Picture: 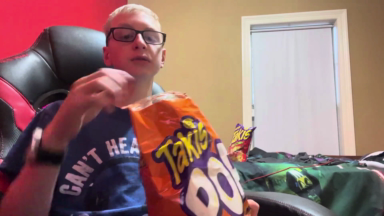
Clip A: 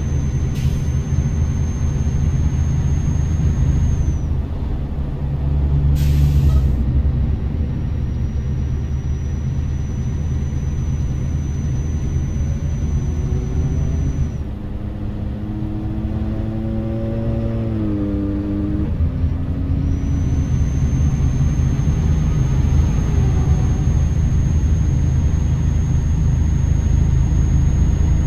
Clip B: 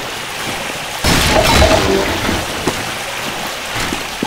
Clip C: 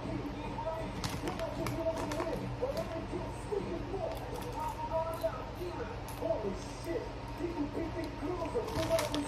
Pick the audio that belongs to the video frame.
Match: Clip C